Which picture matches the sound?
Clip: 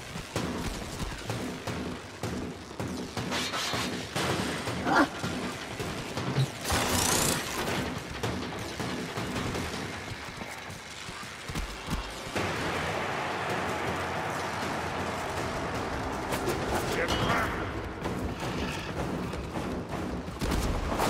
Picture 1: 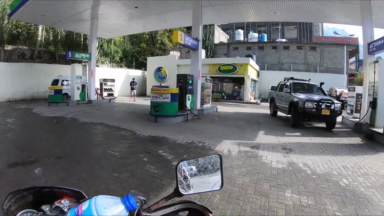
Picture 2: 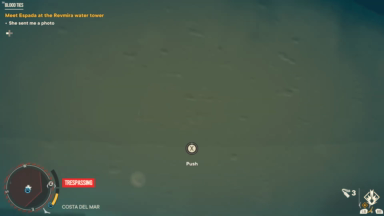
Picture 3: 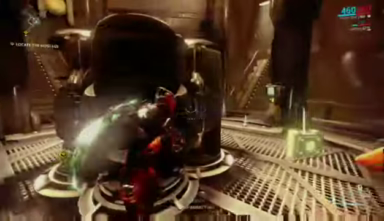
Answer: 3